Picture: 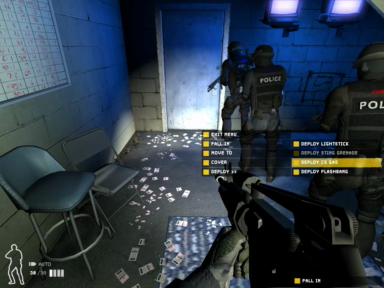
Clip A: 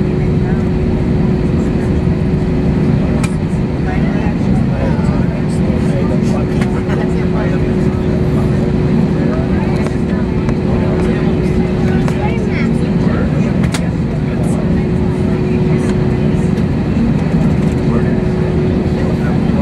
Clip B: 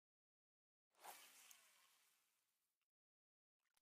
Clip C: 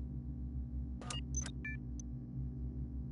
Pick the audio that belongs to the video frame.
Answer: C